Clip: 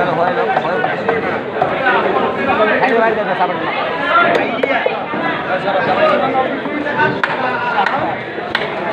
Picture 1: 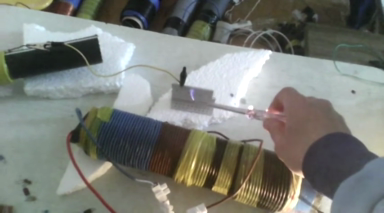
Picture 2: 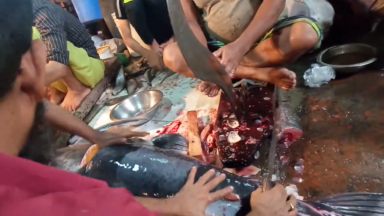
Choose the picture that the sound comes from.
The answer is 2